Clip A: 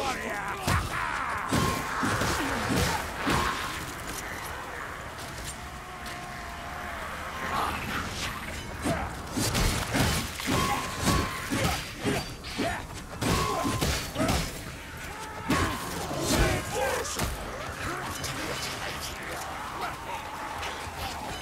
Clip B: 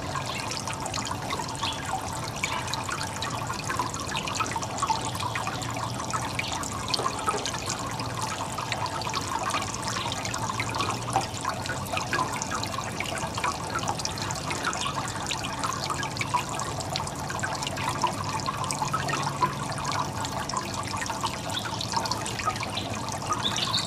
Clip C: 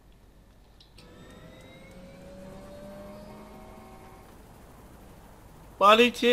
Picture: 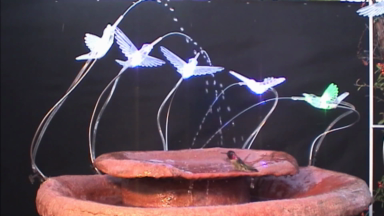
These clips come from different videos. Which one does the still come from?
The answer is B